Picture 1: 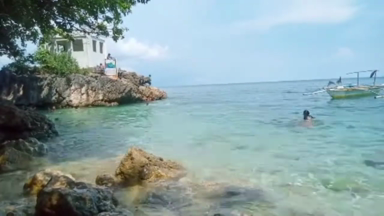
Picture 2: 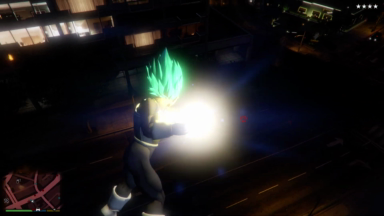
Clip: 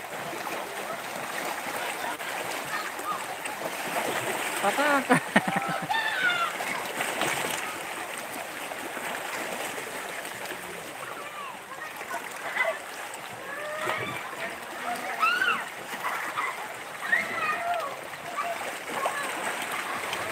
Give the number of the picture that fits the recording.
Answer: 1